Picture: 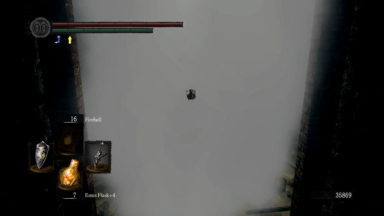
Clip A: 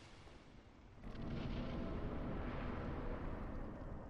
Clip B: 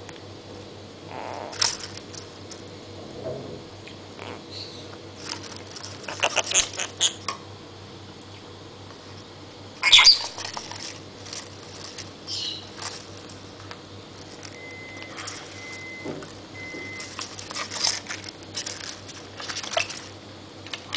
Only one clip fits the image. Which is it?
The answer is A